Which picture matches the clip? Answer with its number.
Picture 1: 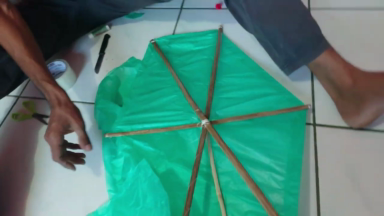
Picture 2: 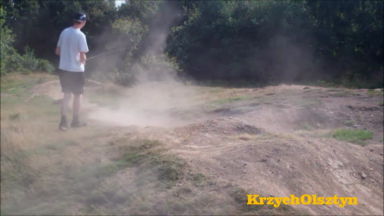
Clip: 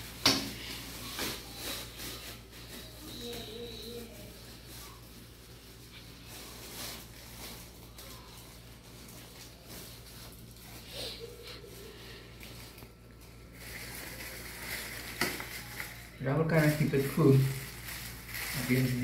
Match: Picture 1